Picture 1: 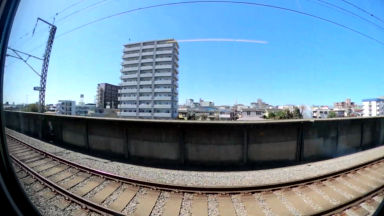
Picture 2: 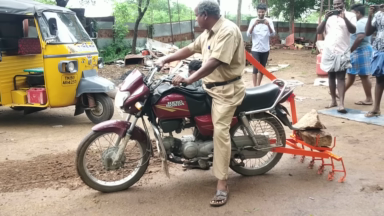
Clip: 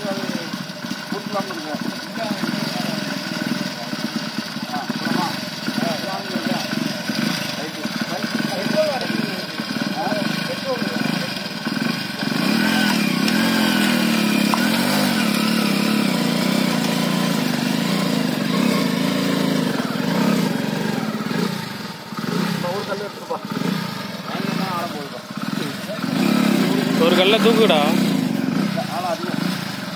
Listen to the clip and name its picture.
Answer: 2